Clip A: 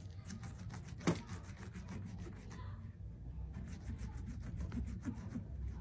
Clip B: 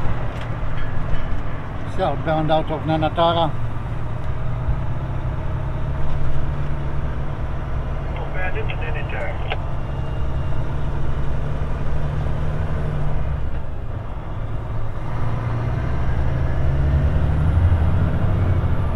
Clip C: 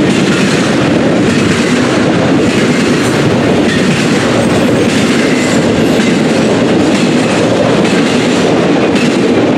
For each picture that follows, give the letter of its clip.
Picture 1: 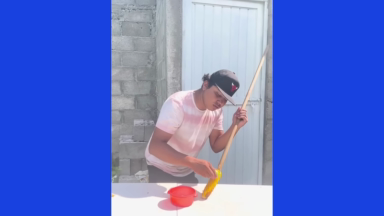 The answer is A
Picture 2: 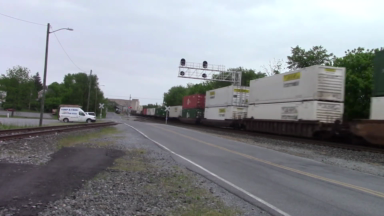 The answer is C